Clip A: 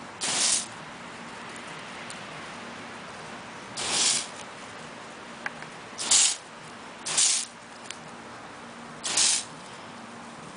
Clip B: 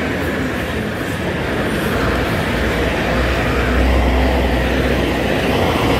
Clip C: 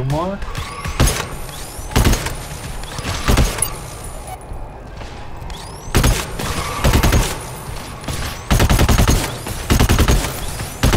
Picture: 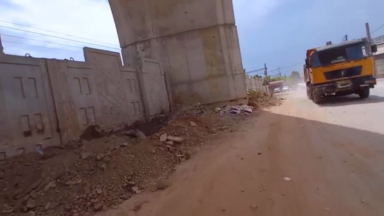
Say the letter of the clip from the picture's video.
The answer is B